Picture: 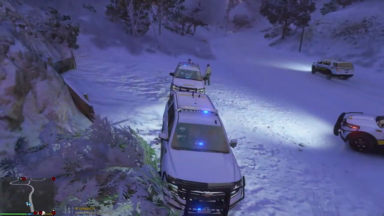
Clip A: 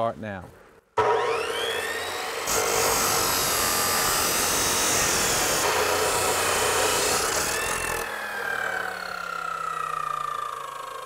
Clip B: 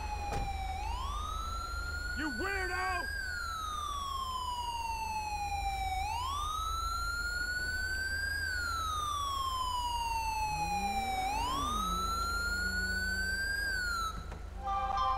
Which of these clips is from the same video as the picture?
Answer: B